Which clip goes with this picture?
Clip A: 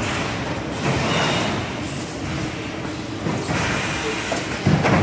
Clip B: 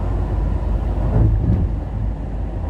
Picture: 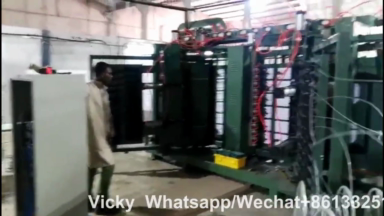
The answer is A